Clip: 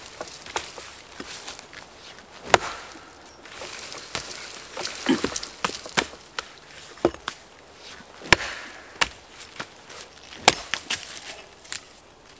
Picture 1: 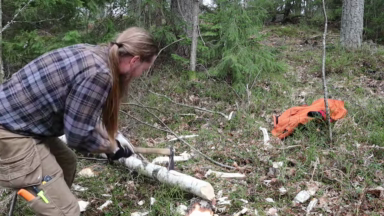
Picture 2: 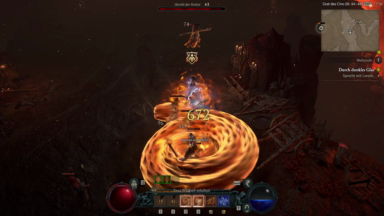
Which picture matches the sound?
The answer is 1